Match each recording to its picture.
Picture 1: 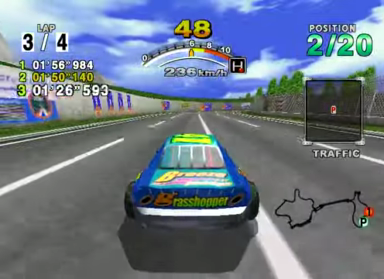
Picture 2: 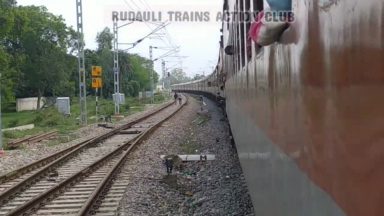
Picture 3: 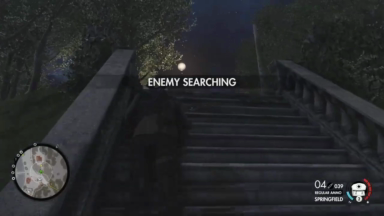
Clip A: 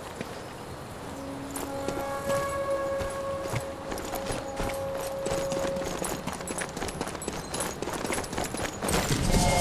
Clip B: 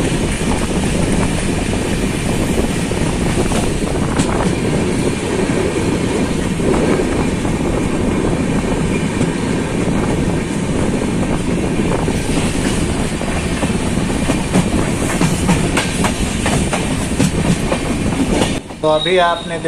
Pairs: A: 3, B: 2